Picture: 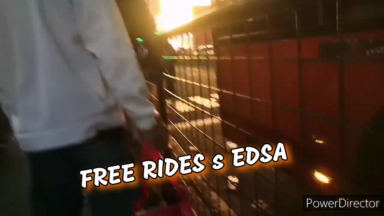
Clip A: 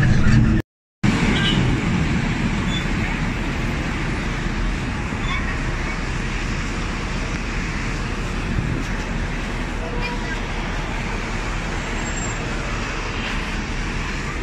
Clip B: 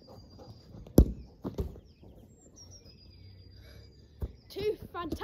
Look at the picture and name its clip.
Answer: A